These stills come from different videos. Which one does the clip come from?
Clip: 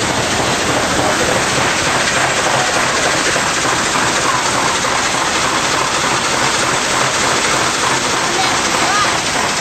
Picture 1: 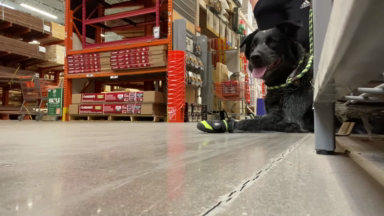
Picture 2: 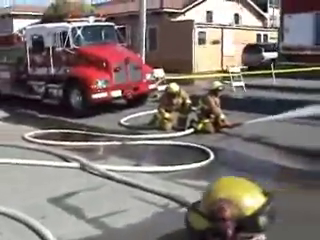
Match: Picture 2